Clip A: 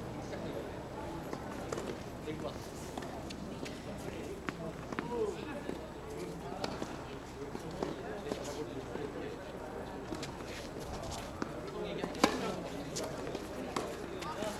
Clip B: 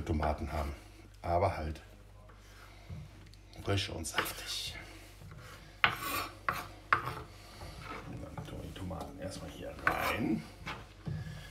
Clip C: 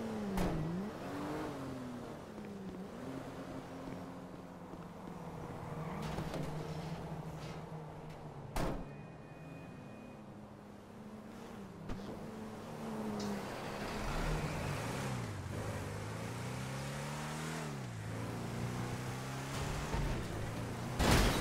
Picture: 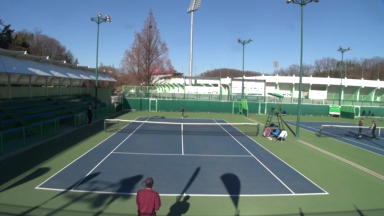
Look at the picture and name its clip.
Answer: A